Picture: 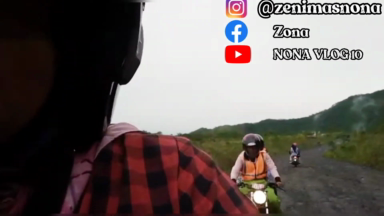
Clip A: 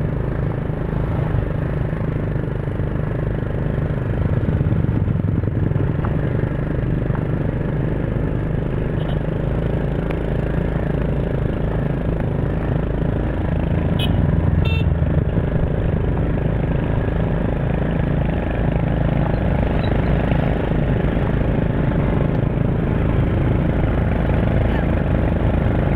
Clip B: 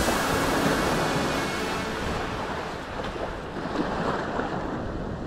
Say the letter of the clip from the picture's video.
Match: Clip A